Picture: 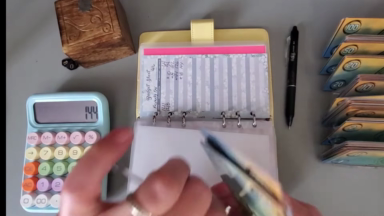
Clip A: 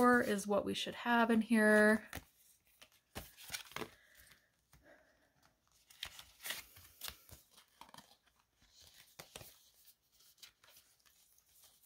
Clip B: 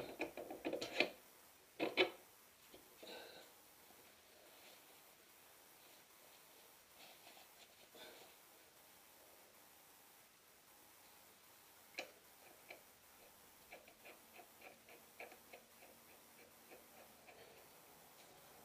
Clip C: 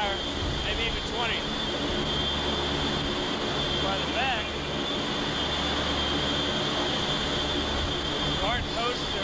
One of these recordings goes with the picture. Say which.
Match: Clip A